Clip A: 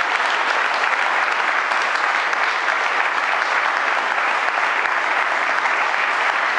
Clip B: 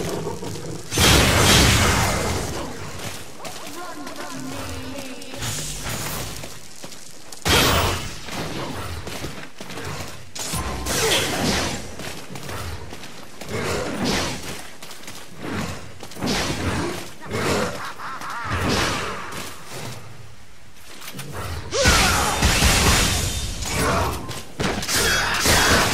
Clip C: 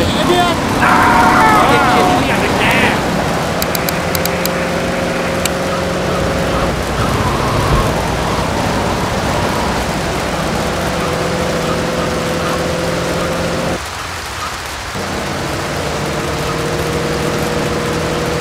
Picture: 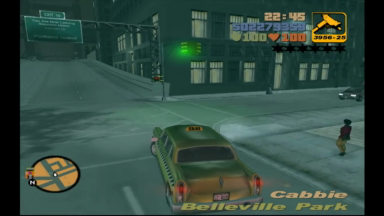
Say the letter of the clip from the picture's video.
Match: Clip C